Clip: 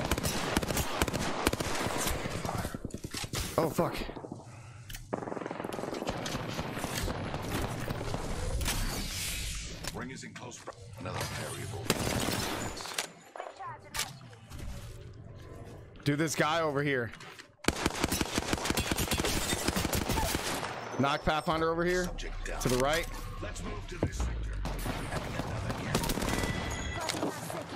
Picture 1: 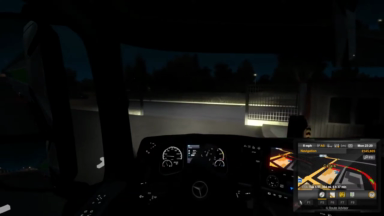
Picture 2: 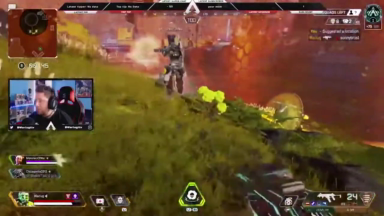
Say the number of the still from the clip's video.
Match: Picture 2